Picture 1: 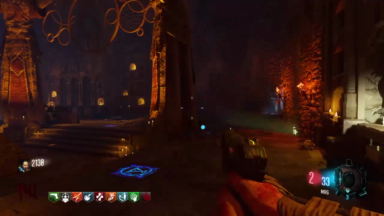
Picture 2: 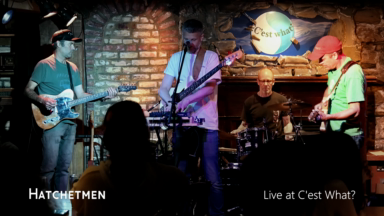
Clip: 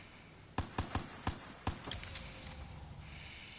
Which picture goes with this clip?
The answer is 1